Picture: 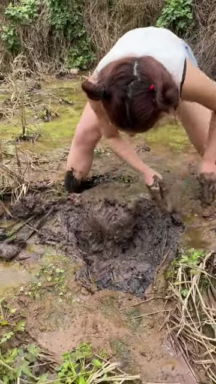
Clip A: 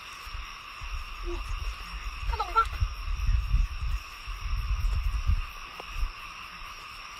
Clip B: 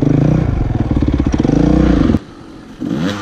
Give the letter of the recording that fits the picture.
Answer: A